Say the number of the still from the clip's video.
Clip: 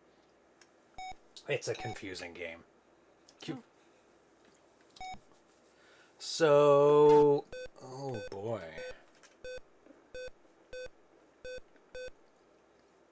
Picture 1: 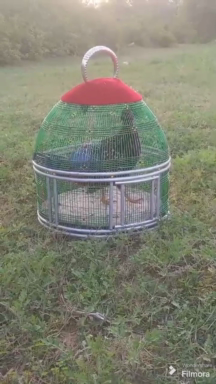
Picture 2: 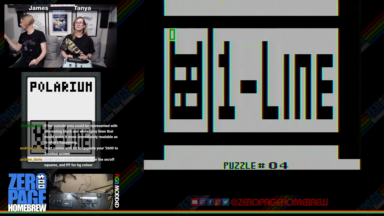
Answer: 2